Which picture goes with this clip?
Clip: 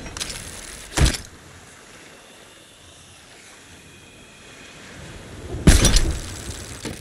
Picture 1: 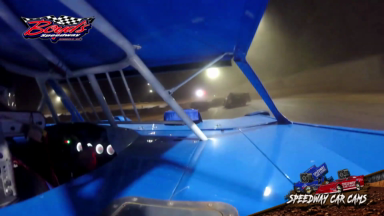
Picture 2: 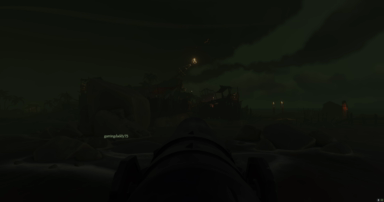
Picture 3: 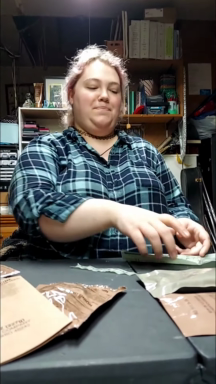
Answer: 2